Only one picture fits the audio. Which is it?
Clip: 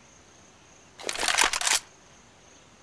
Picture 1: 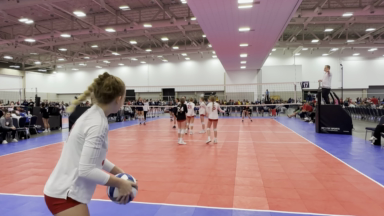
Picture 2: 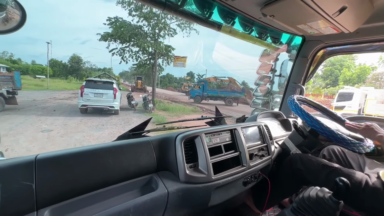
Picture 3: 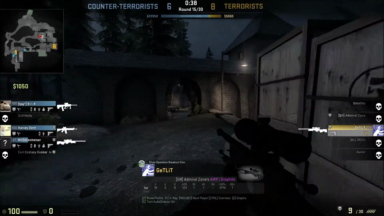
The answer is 3